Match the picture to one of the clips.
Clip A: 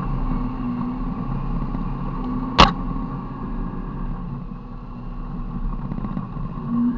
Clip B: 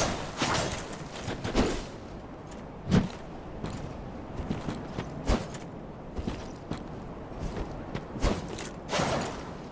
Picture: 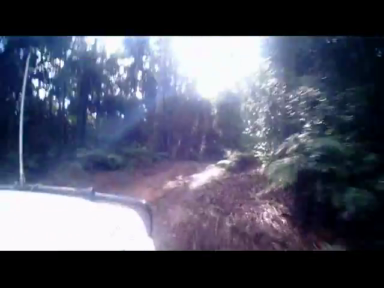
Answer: A